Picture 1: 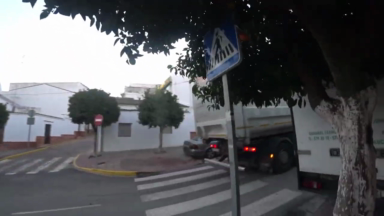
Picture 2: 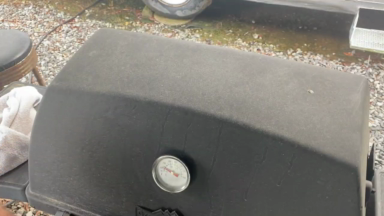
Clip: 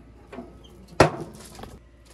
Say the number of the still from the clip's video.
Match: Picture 2